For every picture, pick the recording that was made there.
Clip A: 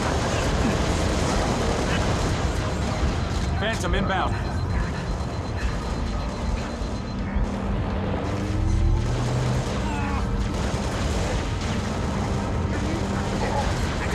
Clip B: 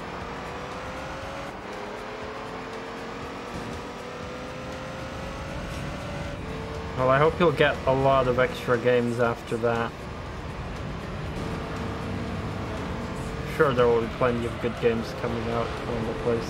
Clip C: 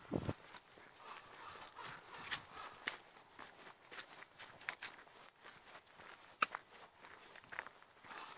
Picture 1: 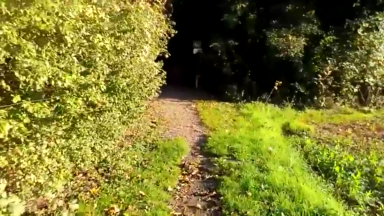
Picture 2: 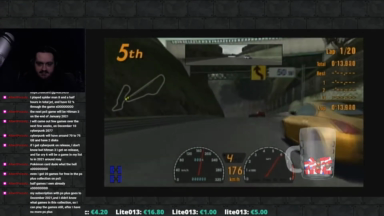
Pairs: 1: C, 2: B